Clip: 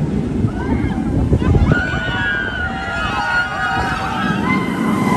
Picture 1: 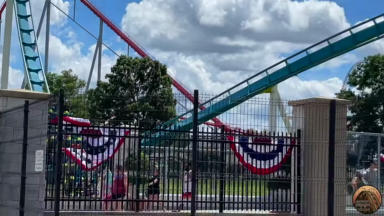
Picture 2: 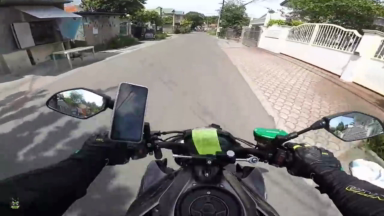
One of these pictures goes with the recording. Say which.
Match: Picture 1